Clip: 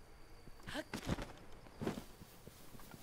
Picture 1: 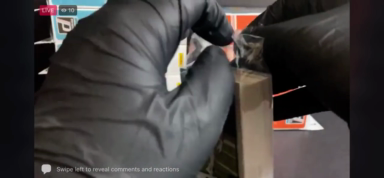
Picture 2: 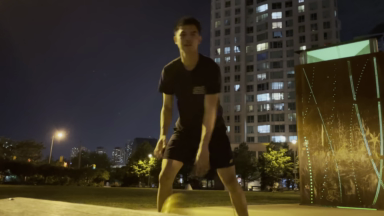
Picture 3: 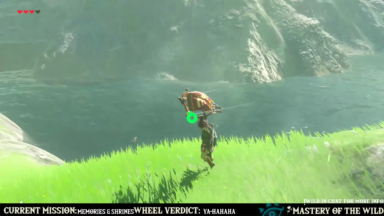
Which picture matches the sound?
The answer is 3